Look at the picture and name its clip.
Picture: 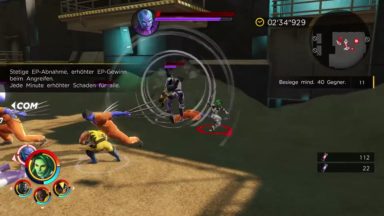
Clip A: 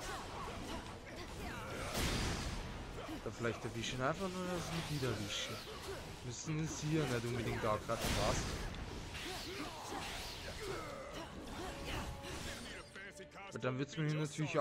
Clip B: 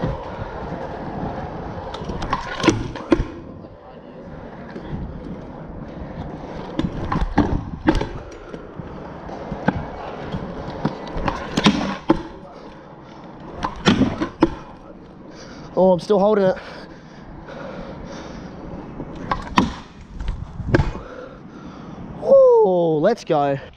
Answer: A